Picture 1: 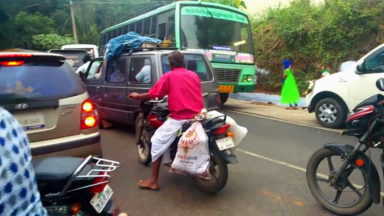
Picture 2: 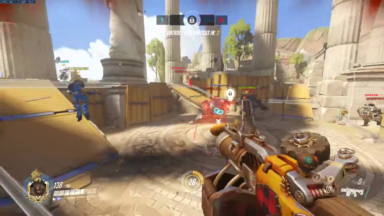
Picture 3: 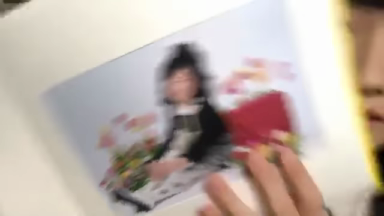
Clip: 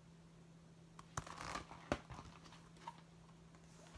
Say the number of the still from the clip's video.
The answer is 3